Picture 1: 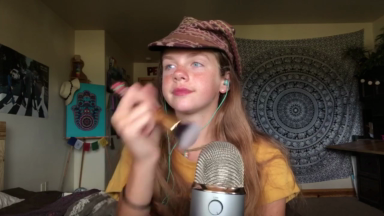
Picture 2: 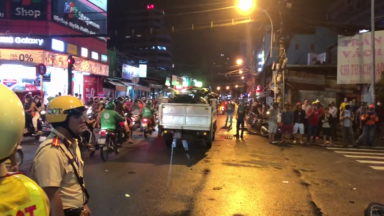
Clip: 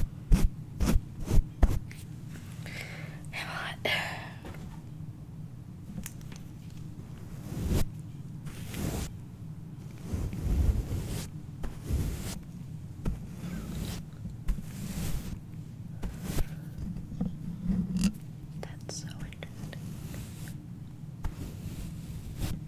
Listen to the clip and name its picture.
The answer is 1